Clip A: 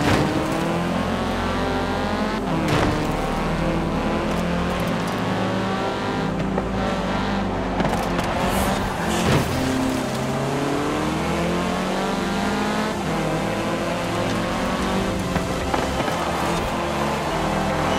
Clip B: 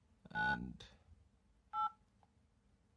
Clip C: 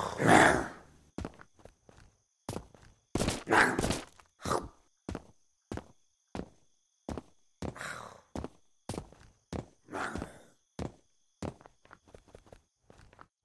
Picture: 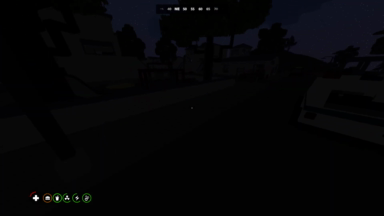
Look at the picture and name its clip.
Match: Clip C